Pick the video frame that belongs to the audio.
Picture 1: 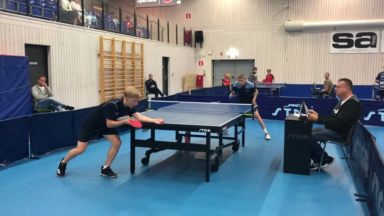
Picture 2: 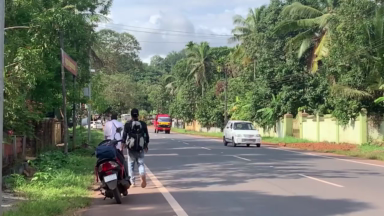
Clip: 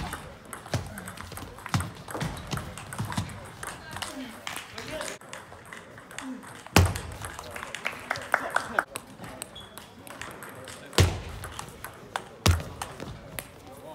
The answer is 1